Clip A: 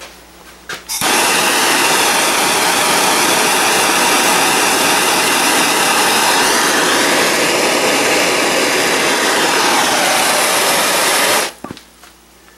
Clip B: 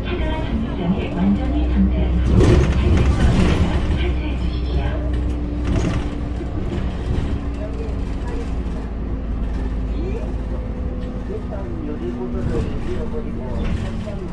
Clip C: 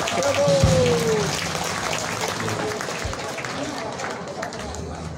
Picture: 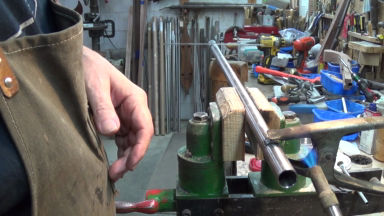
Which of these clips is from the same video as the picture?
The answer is A